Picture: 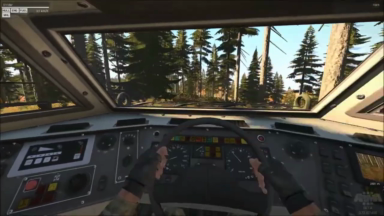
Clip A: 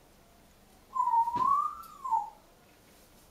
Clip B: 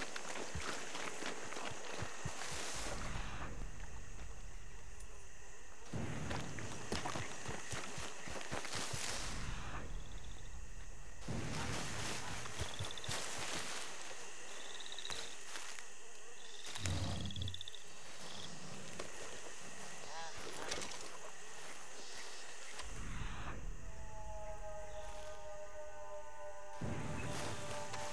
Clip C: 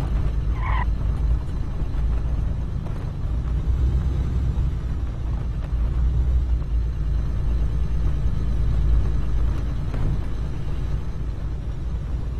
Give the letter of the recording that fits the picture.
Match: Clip C